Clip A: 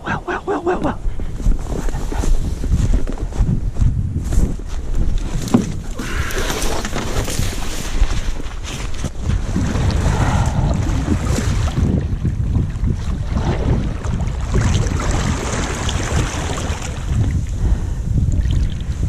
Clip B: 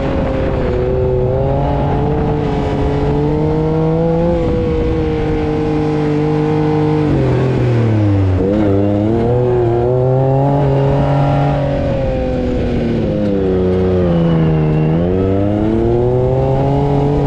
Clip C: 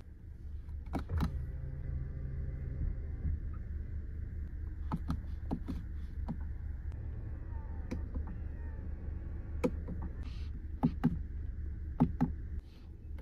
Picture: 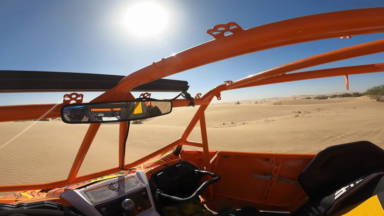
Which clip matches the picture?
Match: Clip B